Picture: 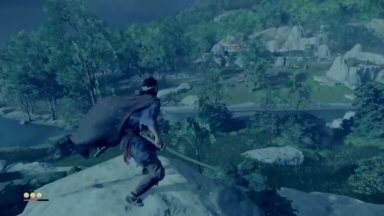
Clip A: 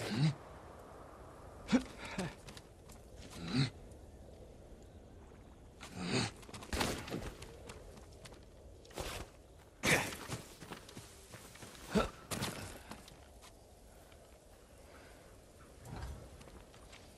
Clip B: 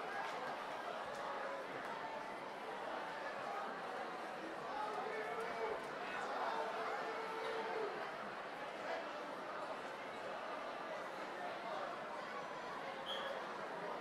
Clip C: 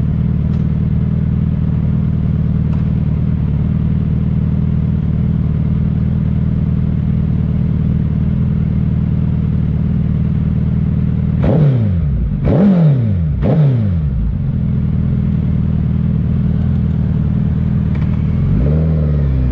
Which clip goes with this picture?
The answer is A